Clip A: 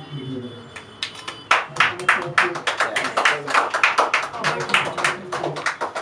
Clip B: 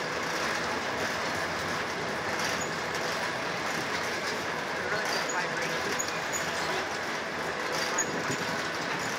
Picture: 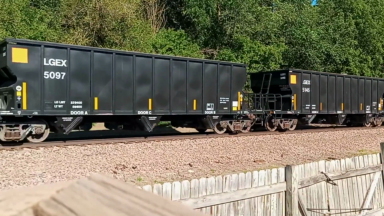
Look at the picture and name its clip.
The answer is B